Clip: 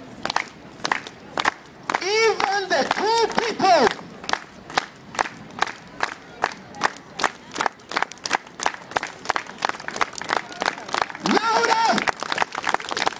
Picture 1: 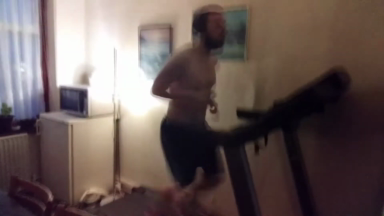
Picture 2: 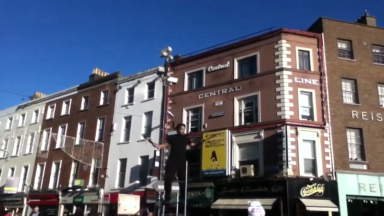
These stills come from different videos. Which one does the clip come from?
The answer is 2